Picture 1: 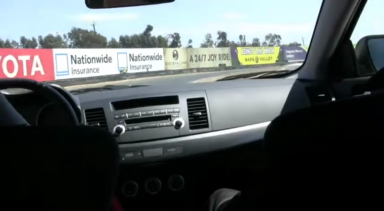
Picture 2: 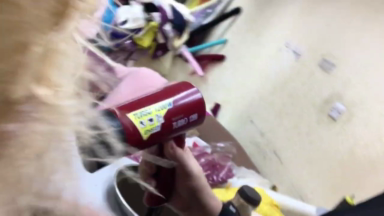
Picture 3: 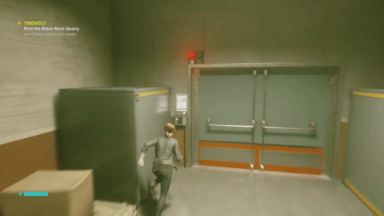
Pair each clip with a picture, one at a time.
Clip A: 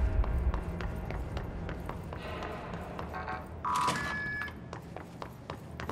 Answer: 3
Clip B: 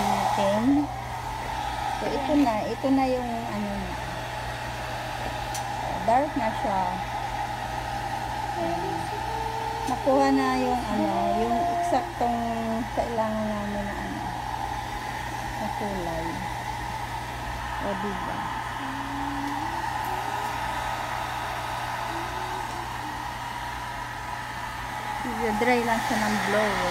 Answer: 2